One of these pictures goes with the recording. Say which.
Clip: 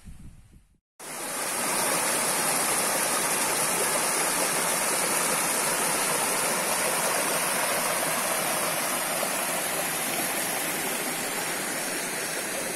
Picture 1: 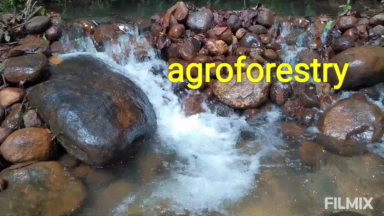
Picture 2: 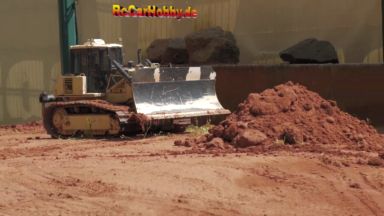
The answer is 1